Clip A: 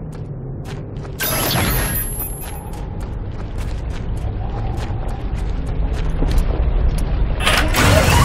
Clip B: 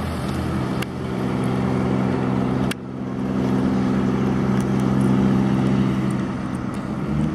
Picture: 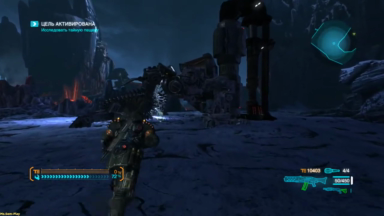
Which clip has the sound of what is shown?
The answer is A